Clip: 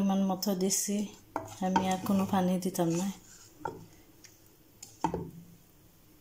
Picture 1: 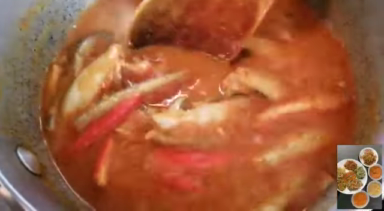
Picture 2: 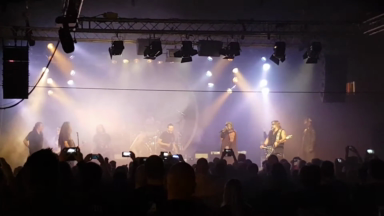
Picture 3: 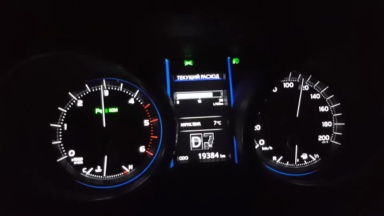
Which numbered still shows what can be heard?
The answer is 1